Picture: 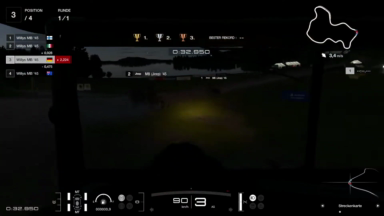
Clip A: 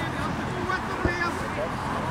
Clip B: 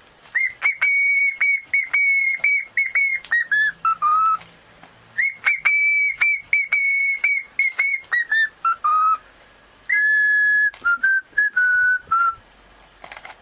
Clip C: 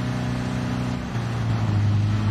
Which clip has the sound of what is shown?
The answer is C